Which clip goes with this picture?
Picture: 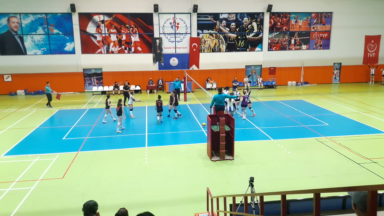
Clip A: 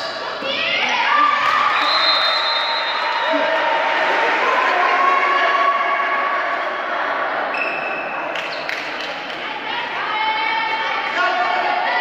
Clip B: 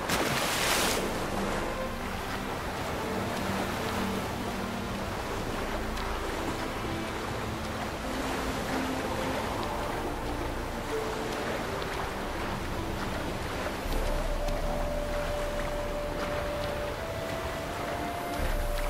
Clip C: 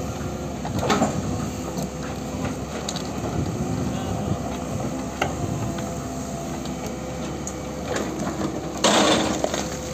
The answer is A